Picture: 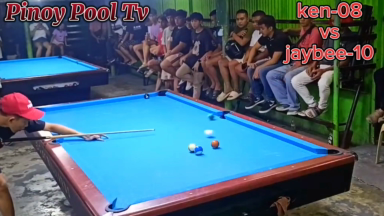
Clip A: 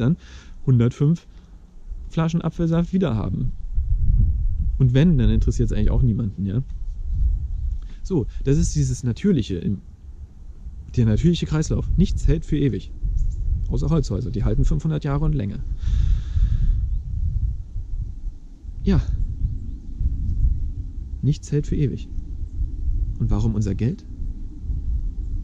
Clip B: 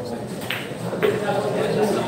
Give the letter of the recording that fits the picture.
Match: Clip B